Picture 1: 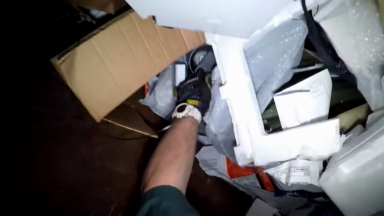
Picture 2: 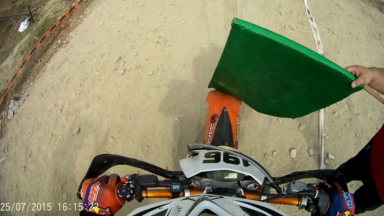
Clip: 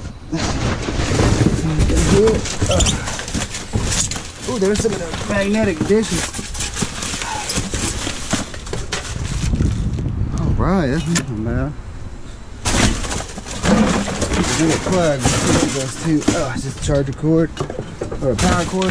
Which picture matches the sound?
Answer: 1